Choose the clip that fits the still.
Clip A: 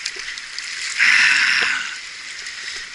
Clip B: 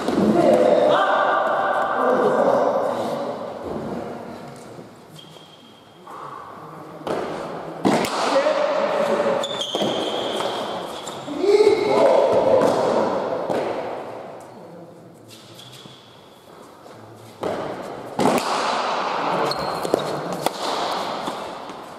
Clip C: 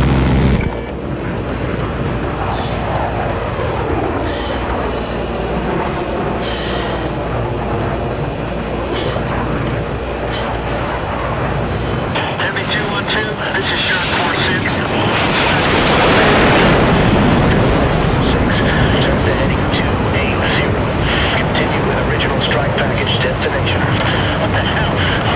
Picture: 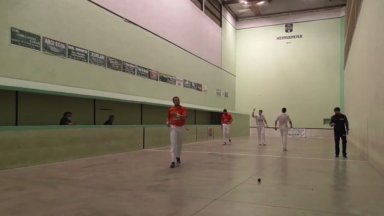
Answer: B